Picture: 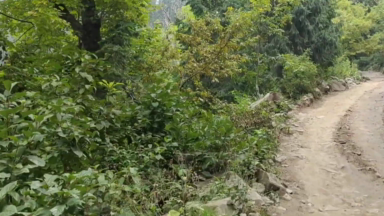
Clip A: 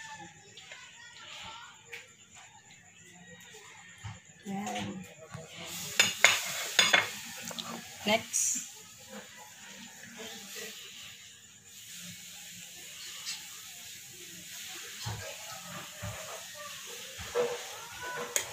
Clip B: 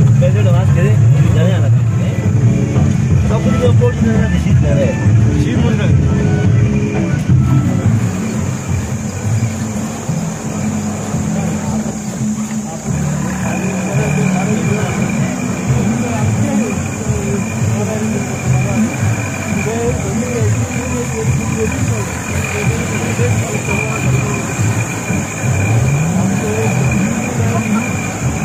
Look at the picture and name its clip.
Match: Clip B